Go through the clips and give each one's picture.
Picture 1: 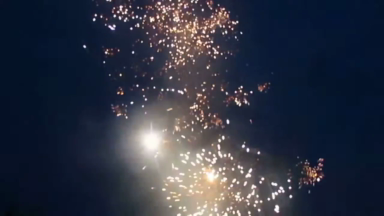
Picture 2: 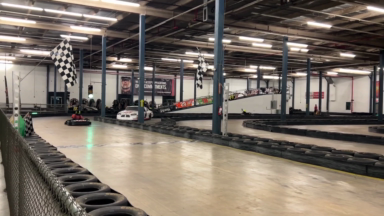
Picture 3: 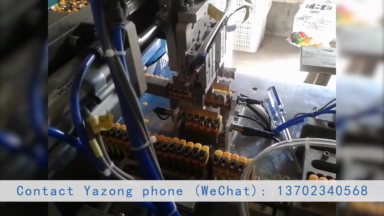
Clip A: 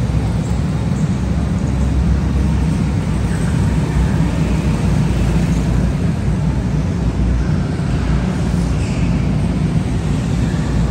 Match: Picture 2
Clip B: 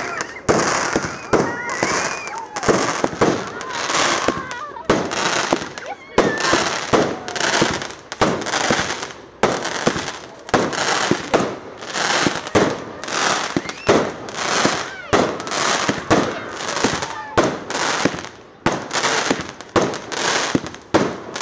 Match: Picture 1